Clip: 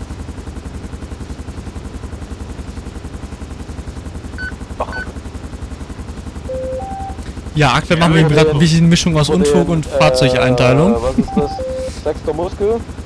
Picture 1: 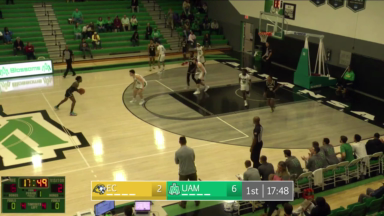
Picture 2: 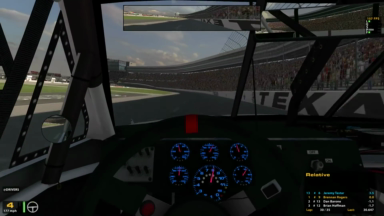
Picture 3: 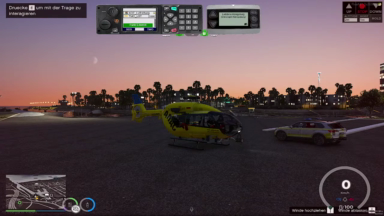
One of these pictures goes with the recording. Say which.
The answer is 3